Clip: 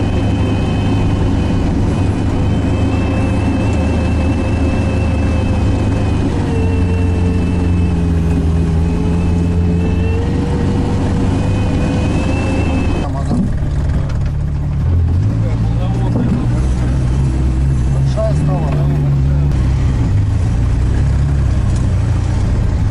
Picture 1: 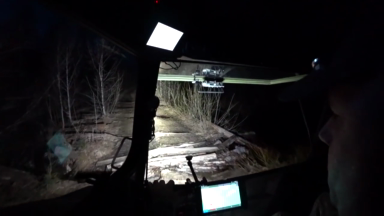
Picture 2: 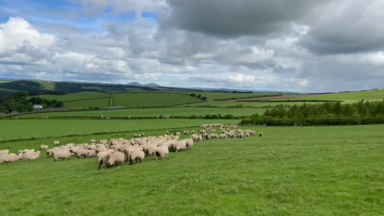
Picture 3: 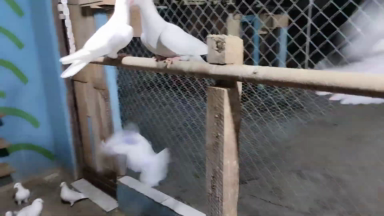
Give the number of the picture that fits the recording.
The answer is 1